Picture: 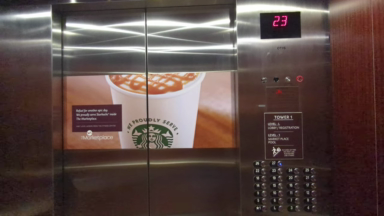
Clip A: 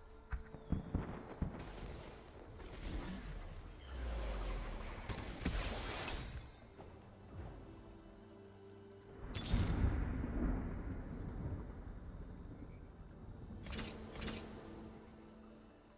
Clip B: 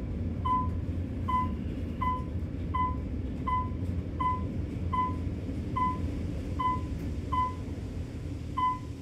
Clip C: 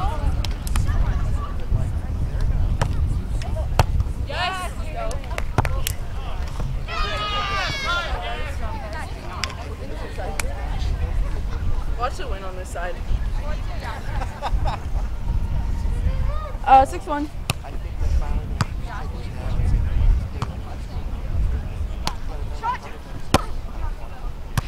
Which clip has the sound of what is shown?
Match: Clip B